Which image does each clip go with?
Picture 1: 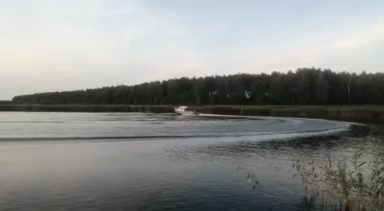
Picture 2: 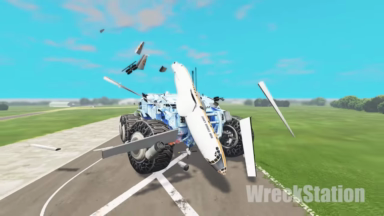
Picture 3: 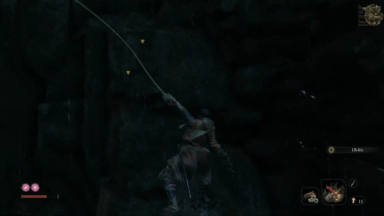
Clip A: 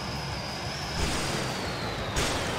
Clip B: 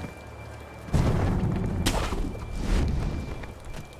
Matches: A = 2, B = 3